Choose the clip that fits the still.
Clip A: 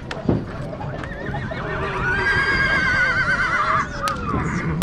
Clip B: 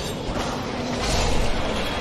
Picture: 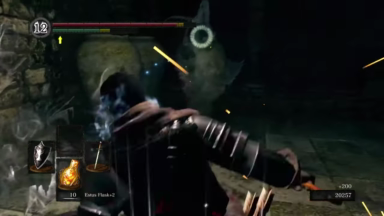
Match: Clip B